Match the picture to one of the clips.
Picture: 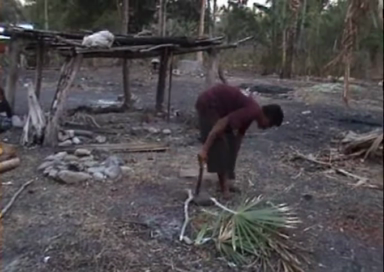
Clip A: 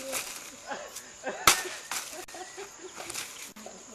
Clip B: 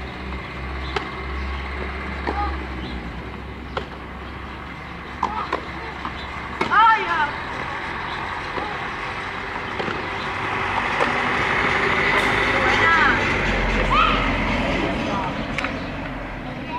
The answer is A